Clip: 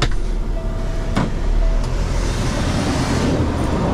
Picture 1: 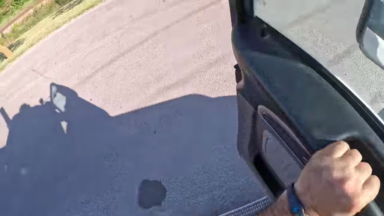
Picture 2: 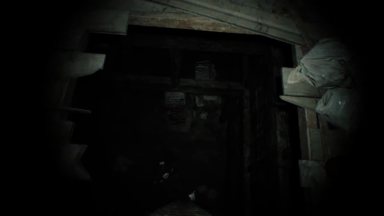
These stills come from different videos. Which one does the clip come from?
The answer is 1